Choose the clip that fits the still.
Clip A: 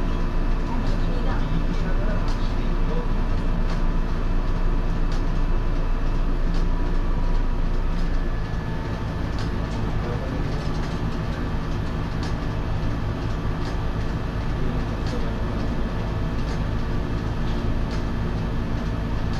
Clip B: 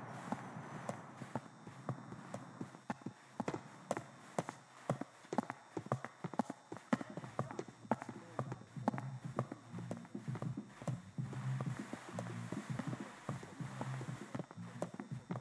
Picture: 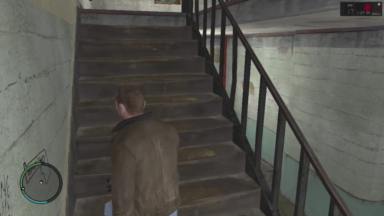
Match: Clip B